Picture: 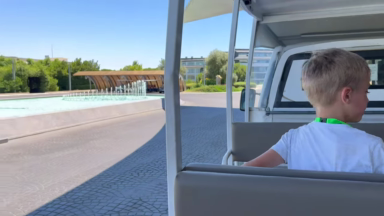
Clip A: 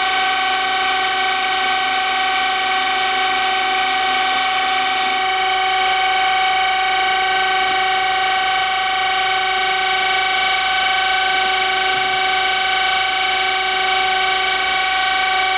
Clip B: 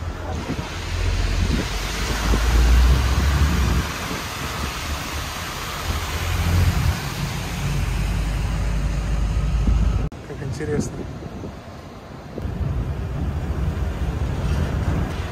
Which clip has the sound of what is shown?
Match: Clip B